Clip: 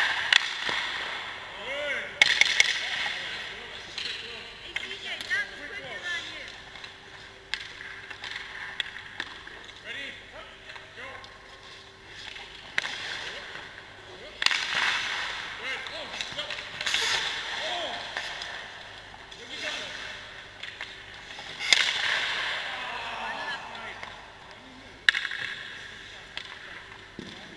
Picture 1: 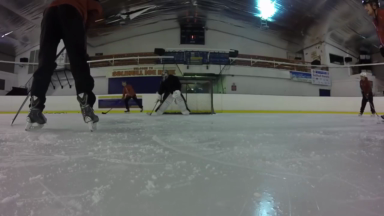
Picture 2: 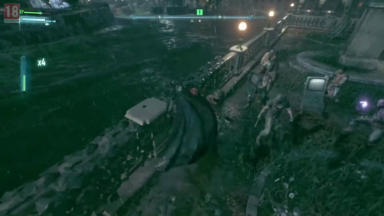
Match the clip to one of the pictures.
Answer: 1